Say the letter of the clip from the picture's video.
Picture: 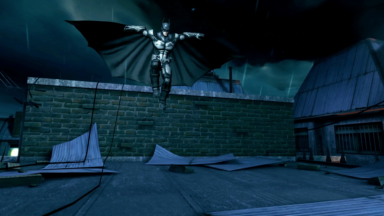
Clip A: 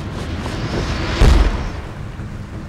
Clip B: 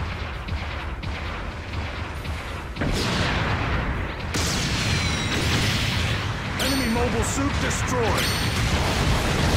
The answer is A